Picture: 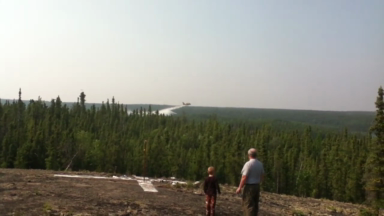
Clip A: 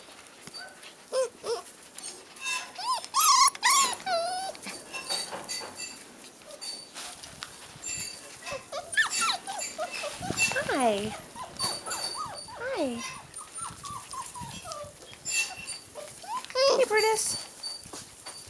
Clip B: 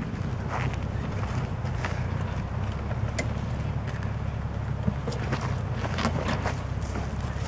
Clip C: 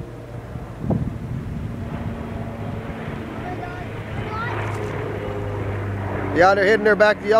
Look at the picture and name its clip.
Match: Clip C